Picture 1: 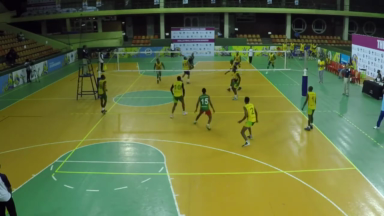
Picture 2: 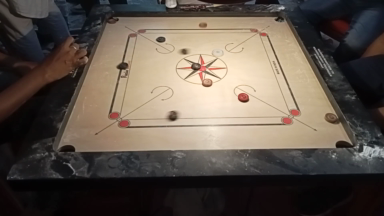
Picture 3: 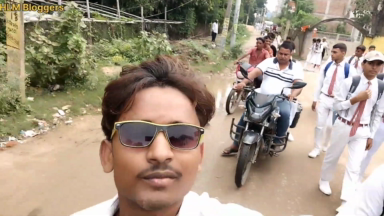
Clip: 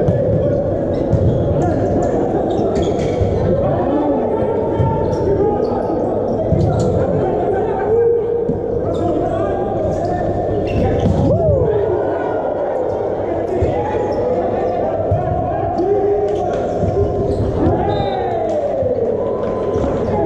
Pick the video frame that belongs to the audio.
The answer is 1